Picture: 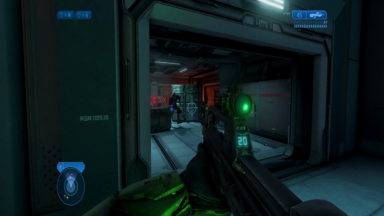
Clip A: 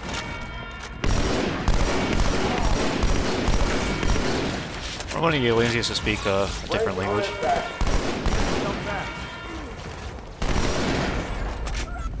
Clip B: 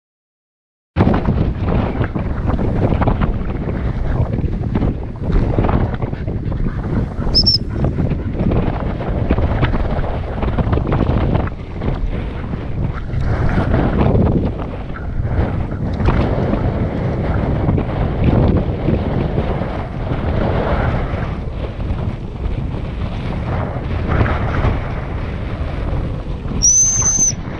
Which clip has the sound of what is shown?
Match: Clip A